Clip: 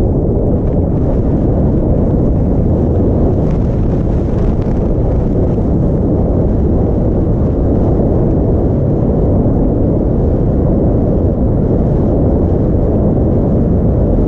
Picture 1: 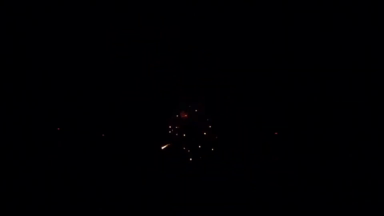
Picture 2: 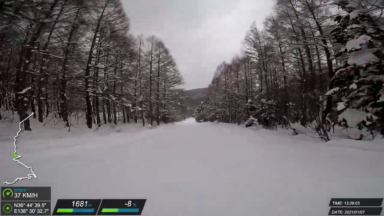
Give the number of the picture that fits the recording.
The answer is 2